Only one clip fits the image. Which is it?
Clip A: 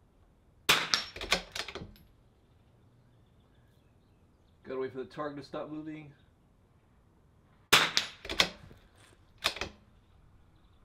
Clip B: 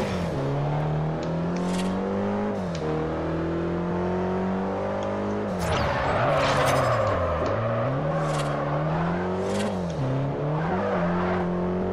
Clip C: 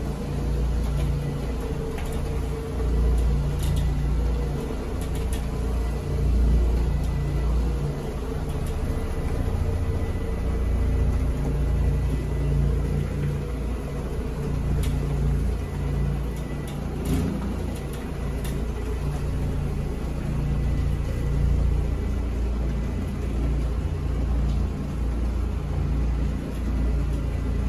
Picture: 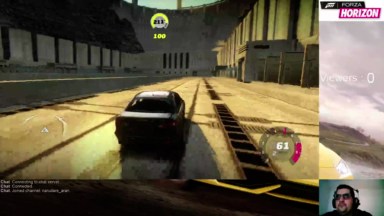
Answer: B